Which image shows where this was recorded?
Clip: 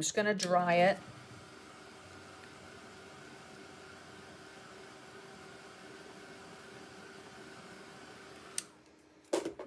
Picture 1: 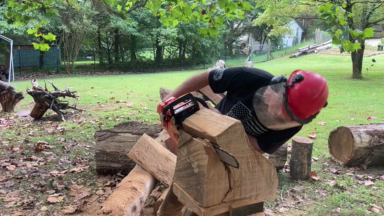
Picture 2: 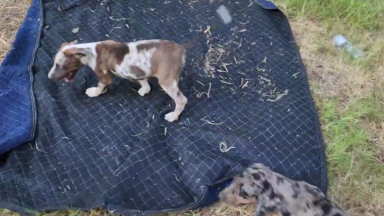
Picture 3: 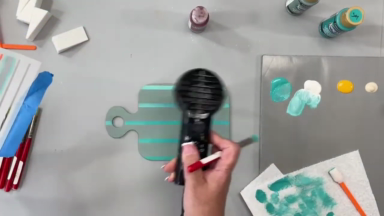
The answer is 3